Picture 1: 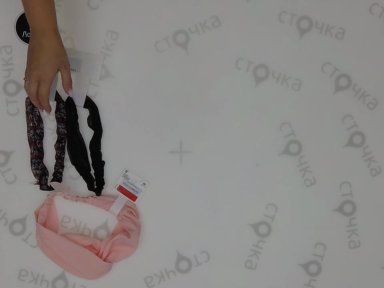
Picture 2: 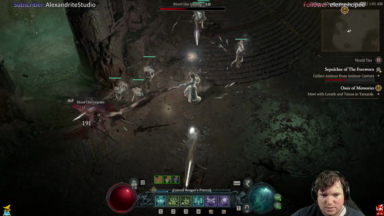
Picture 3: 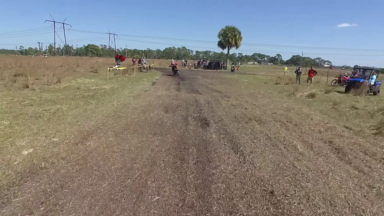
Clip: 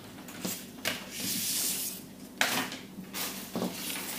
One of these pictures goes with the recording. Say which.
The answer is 1